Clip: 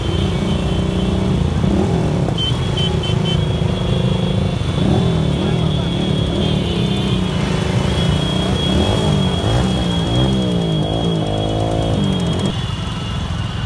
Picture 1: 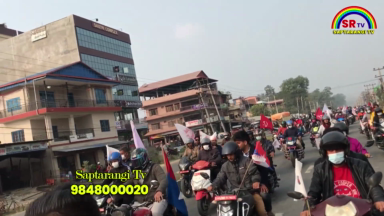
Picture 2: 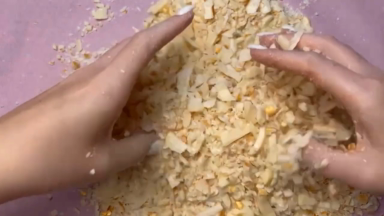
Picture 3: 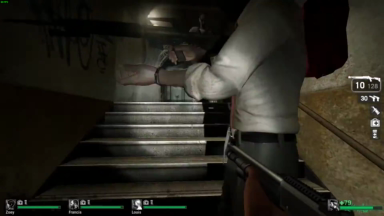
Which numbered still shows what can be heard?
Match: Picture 1